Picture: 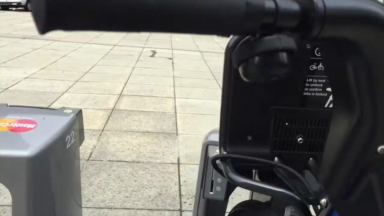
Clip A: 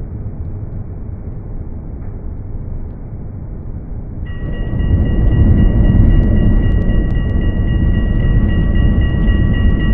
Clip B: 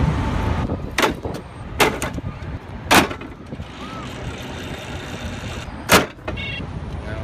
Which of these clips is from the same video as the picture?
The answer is B